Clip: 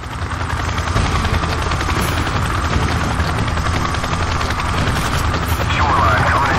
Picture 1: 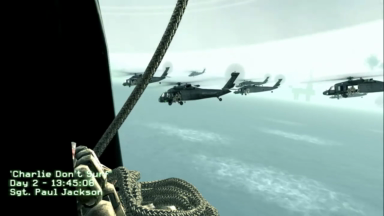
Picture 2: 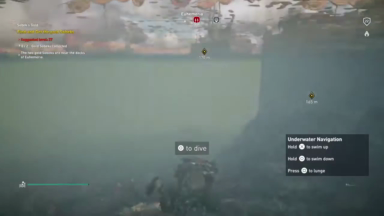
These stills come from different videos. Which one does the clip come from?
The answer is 1